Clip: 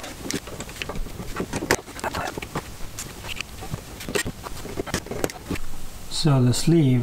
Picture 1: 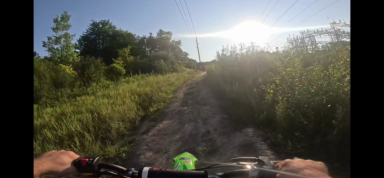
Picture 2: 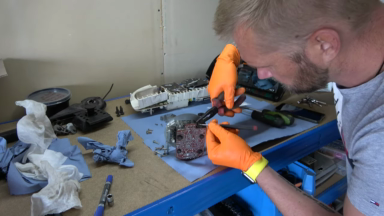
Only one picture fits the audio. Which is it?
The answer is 2